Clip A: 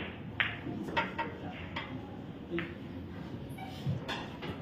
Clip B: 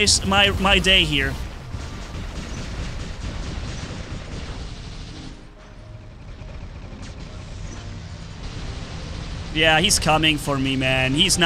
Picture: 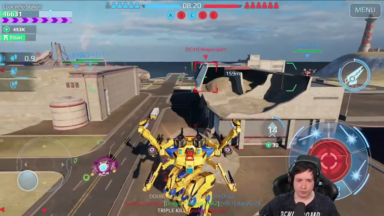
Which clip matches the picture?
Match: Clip B